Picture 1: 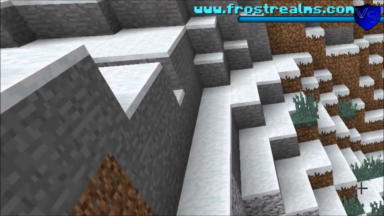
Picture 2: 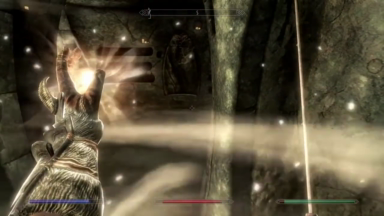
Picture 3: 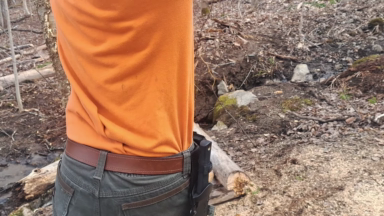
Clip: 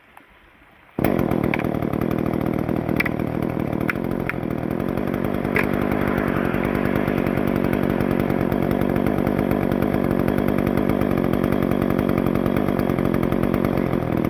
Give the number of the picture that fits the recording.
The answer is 3